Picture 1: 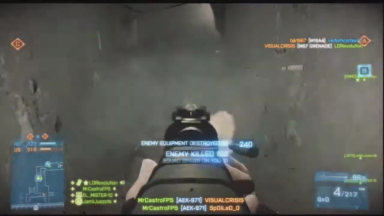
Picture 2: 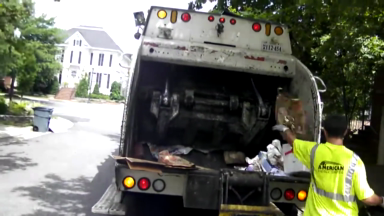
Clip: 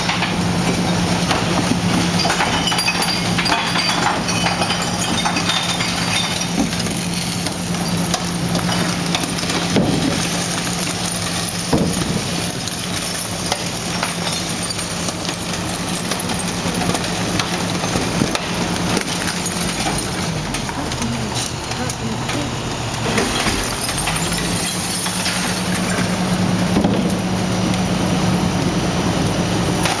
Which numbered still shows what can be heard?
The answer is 2